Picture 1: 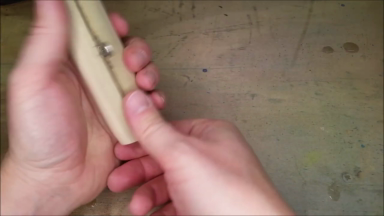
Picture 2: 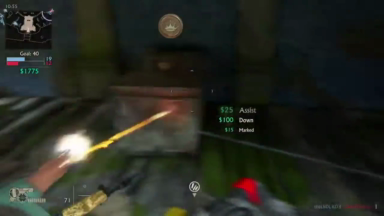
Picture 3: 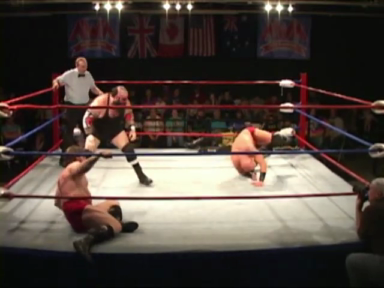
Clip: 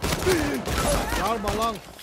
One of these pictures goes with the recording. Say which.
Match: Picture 2